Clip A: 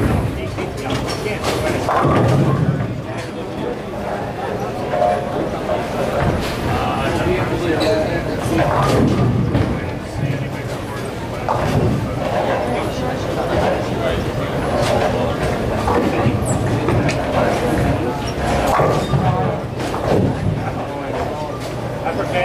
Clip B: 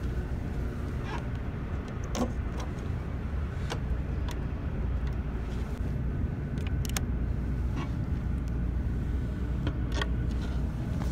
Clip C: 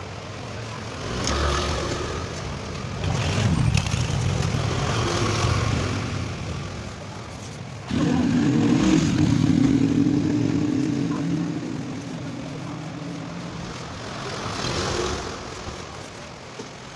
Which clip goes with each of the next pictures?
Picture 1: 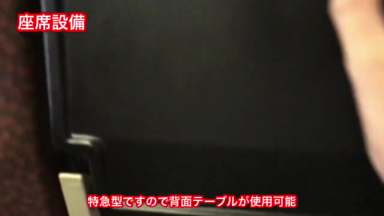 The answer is B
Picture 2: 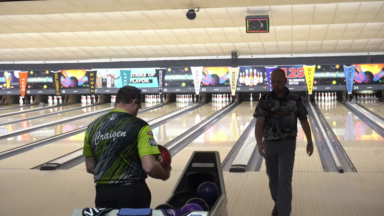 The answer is A